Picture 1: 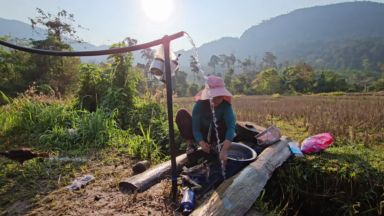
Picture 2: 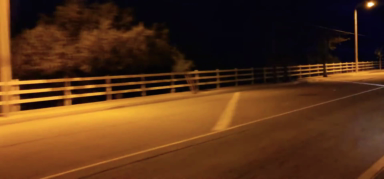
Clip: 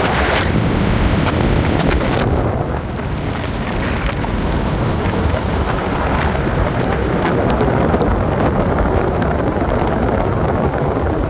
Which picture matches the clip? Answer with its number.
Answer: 2